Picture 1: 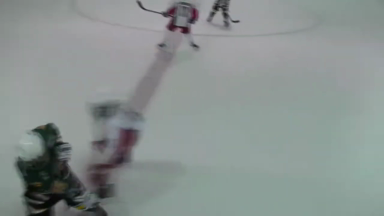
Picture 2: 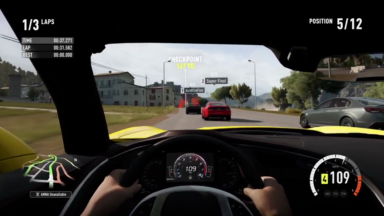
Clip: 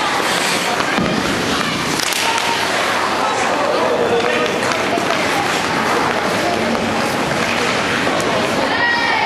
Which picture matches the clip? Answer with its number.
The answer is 1